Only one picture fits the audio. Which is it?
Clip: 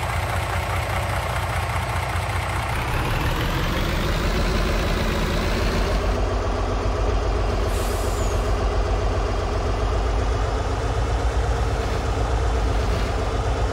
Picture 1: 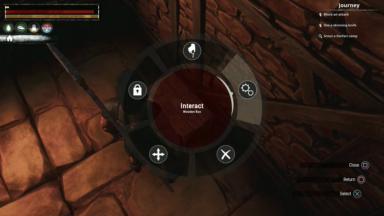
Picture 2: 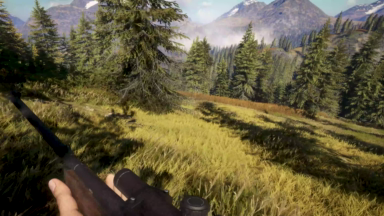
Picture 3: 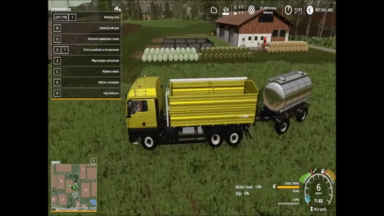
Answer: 3